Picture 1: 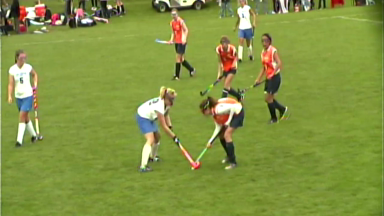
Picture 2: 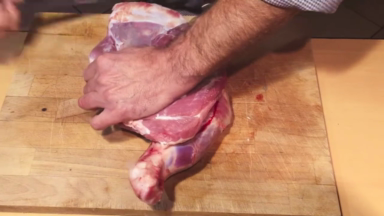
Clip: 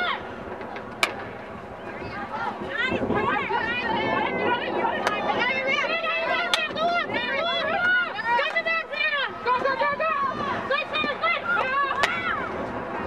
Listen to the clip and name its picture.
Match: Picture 1